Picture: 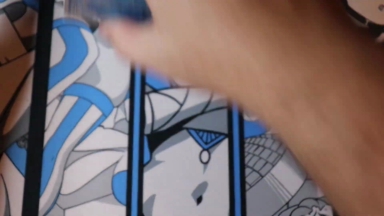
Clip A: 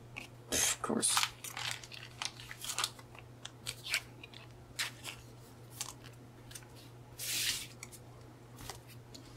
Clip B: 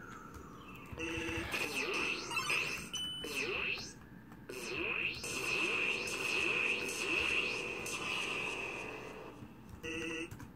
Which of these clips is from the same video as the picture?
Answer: A